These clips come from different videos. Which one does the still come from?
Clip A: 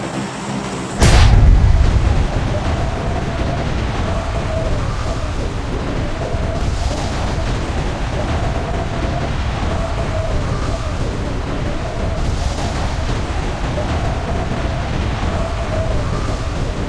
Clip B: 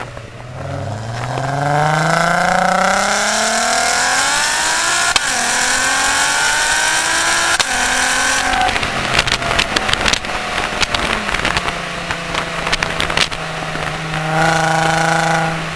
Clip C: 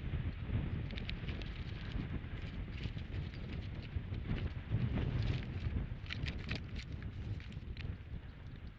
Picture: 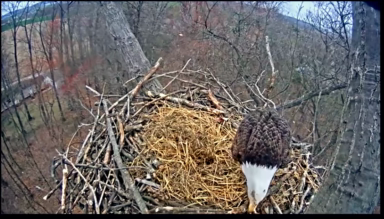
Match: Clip C